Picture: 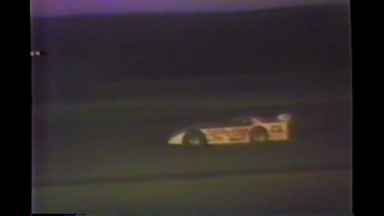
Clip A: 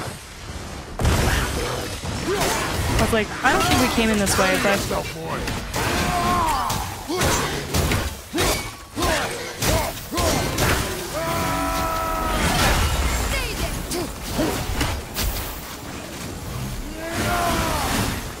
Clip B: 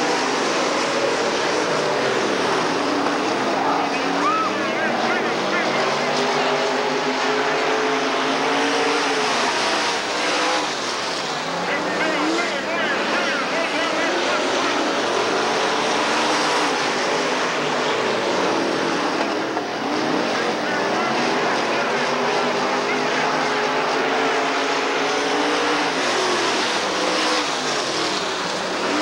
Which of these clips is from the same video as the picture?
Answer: B